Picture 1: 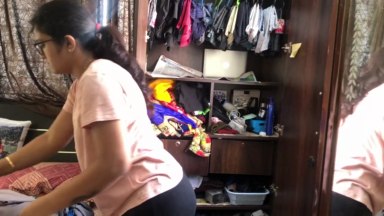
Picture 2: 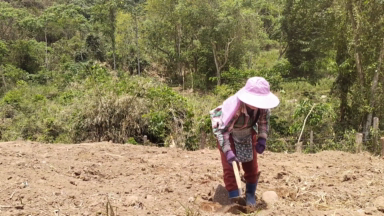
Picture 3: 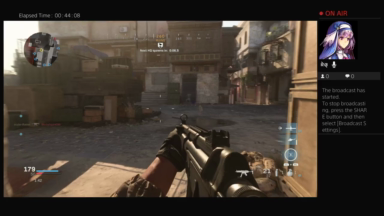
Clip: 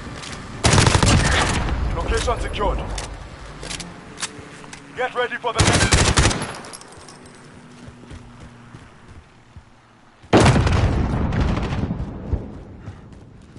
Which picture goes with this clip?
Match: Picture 3